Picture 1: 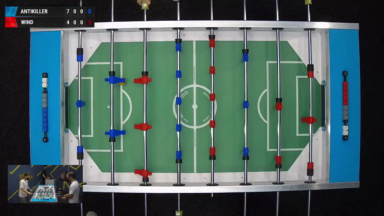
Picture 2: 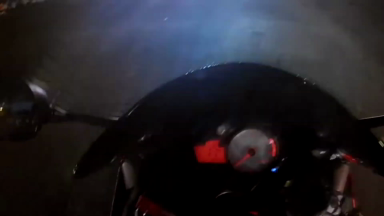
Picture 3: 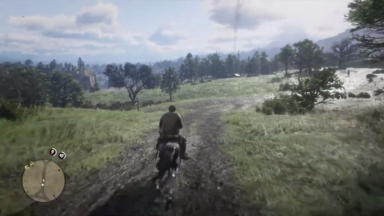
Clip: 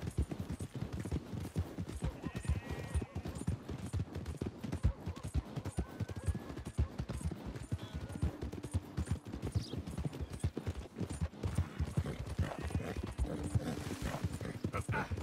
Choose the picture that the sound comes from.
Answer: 3